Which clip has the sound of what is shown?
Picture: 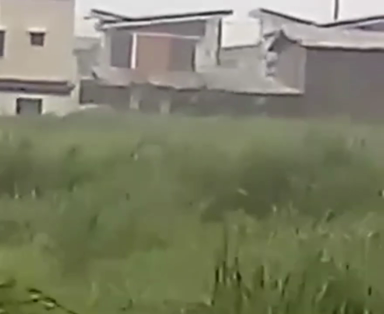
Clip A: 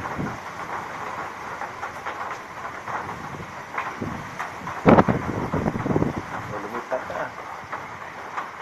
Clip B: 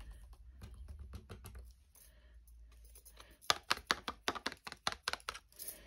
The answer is A